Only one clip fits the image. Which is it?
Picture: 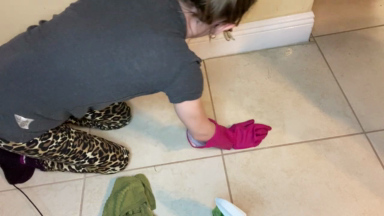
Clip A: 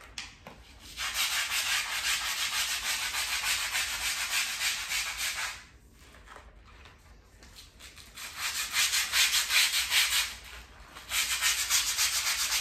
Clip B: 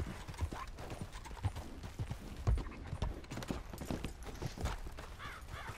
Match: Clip A